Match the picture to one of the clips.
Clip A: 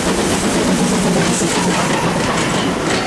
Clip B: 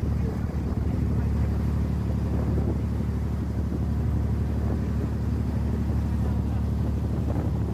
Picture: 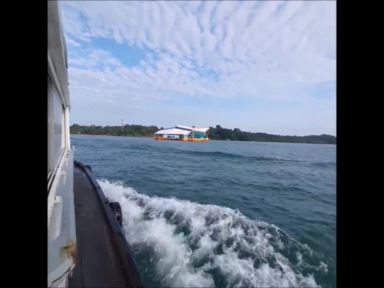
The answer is B